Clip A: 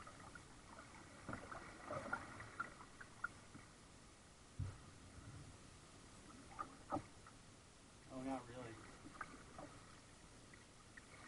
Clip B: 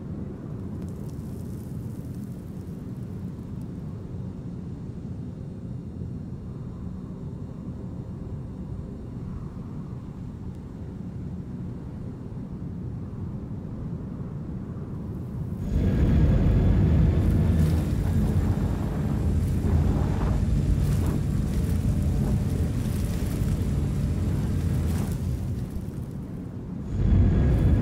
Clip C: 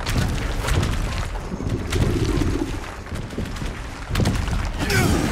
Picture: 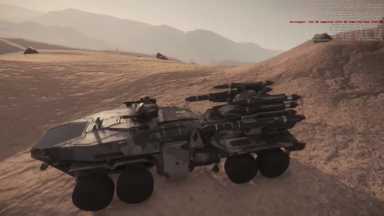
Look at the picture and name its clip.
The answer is B